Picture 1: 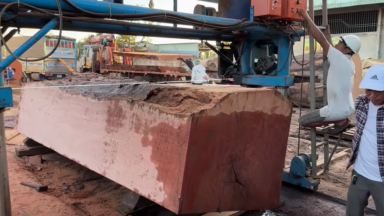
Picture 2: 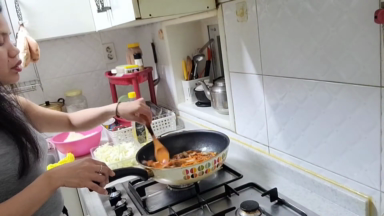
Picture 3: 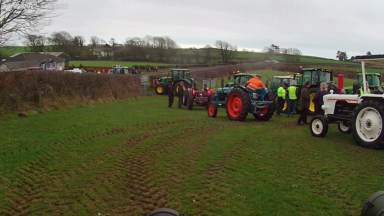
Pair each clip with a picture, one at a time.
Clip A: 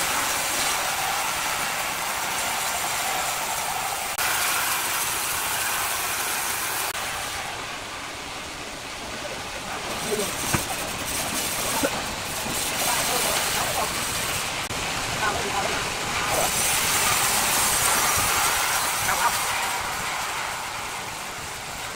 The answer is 1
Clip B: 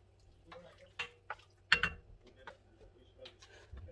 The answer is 2